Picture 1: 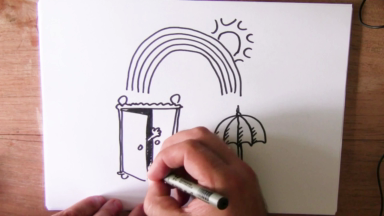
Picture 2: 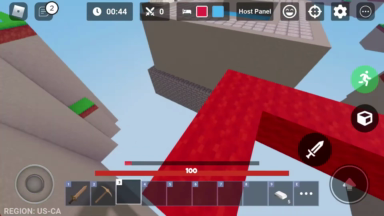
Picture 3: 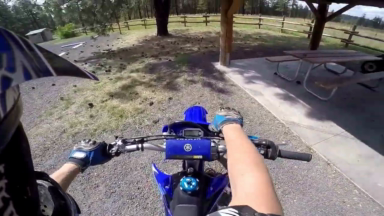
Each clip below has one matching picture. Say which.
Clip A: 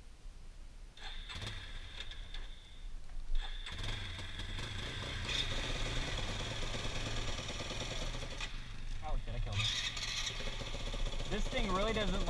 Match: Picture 3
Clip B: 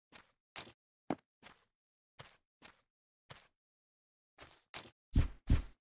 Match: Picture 2